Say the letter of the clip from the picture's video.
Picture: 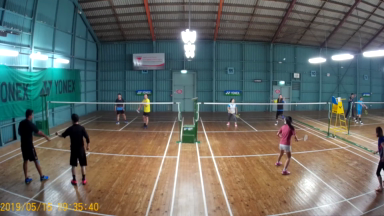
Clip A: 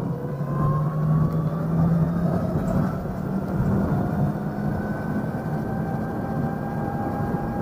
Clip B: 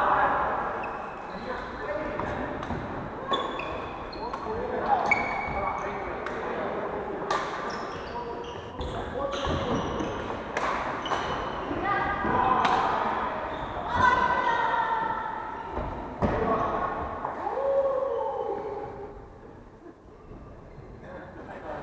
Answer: B